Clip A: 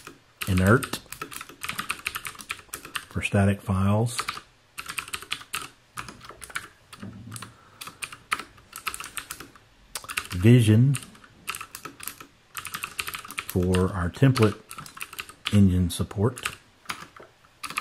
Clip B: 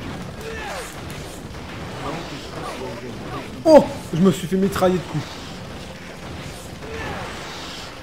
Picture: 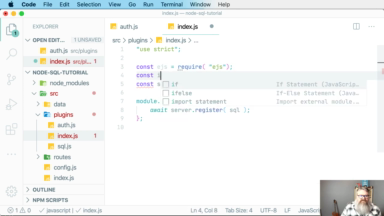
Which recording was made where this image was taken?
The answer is A